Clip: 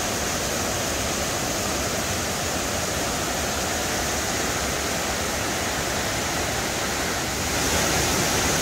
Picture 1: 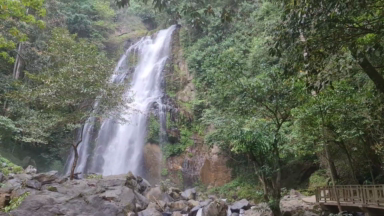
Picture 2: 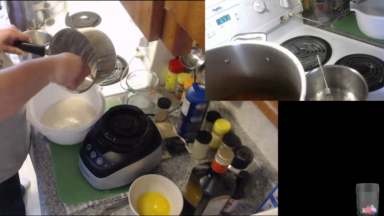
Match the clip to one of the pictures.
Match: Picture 1